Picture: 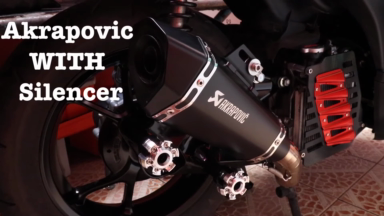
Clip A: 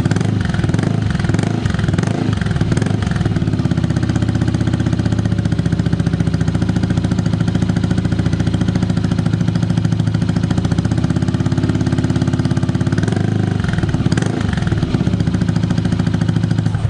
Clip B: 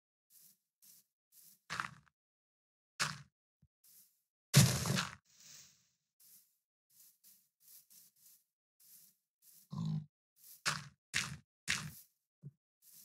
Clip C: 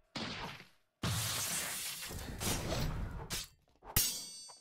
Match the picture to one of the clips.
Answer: A